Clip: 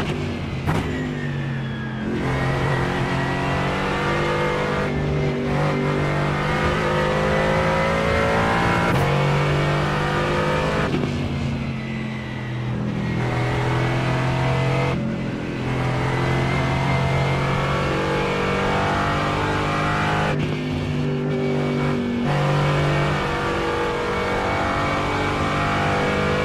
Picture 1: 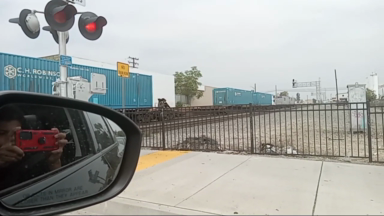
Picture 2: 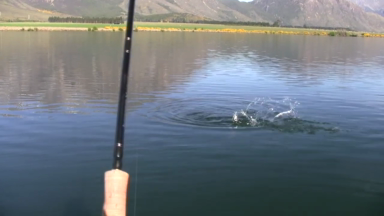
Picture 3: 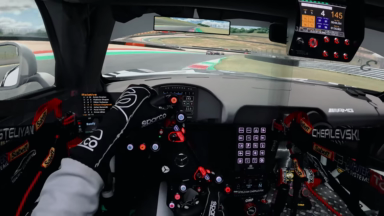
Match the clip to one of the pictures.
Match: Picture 3